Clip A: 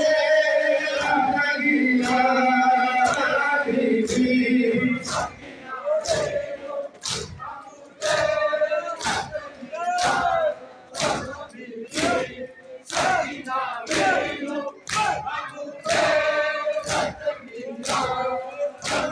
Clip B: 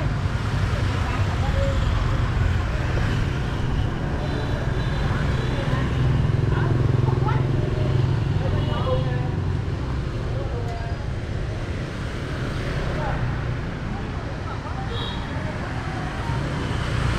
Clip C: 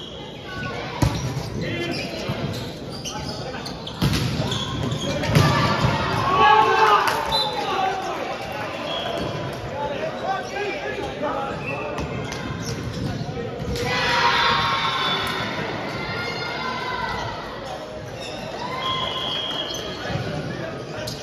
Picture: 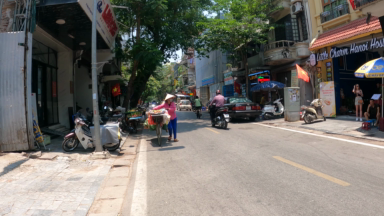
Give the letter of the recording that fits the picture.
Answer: B